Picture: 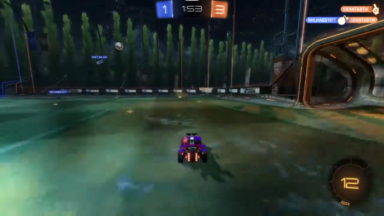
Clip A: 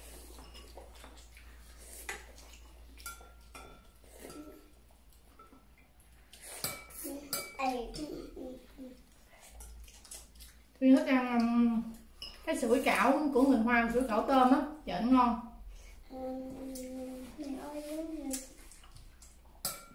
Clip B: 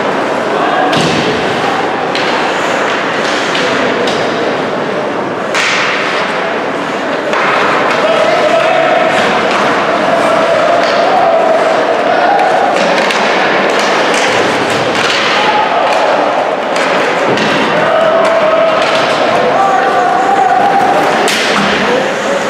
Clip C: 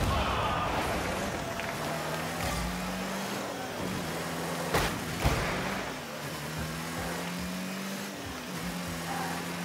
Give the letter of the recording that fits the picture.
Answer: C